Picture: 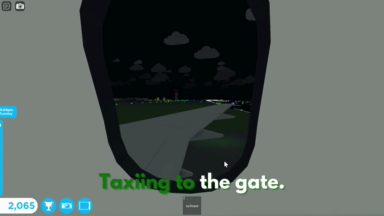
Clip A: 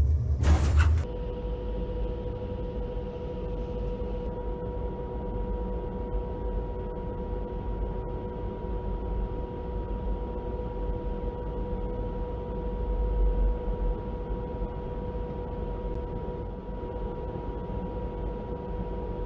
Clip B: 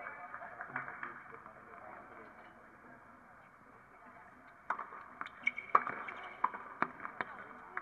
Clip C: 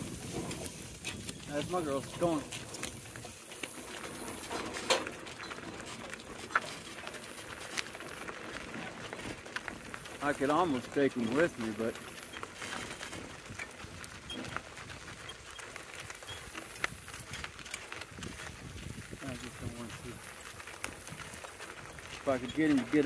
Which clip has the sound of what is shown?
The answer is A